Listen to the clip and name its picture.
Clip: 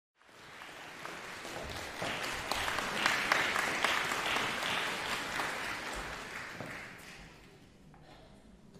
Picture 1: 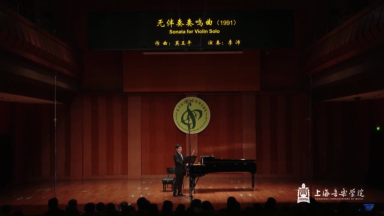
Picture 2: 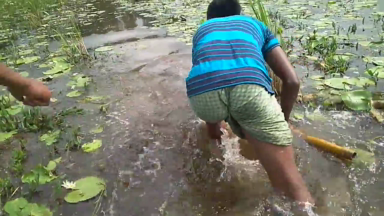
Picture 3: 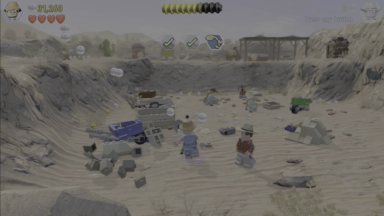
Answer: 1